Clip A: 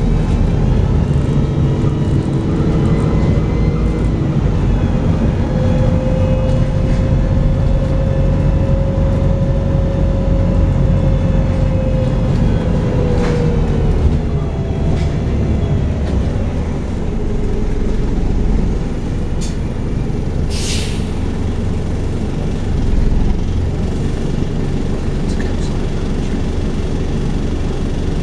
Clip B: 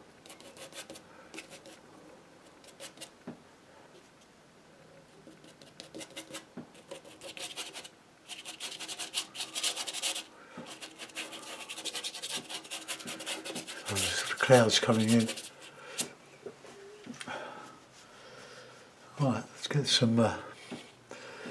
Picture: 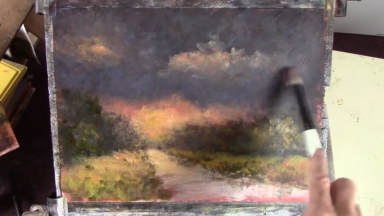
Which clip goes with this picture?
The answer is B